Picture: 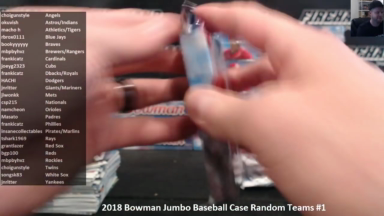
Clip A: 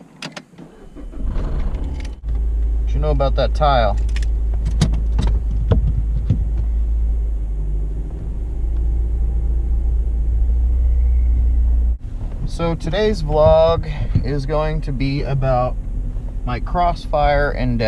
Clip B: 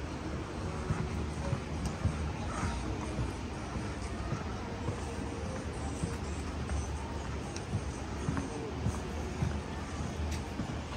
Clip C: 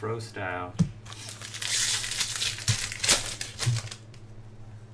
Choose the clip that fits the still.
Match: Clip C